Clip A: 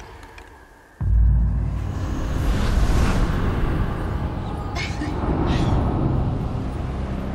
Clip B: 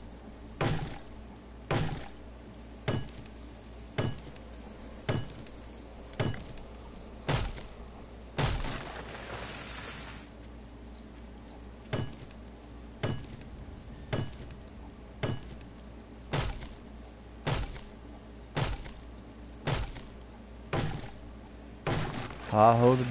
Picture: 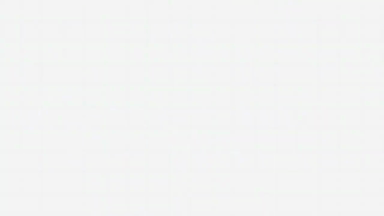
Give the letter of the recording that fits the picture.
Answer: A